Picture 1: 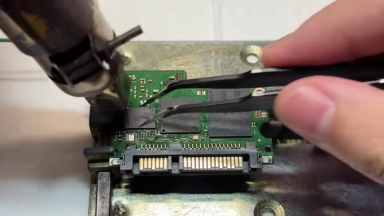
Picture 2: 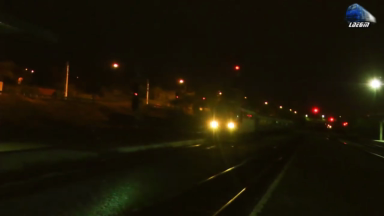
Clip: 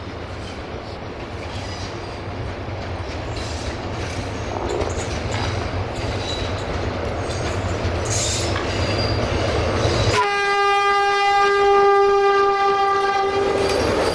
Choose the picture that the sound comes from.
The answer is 2